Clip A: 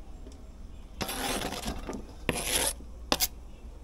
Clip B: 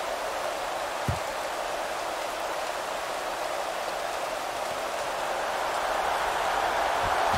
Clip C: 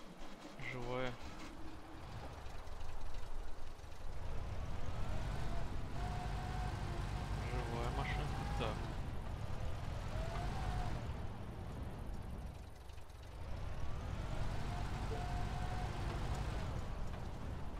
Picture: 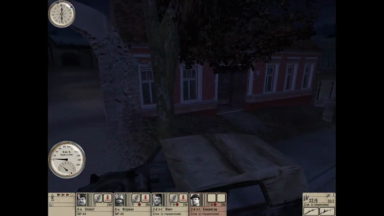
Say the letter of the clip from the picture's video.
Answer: C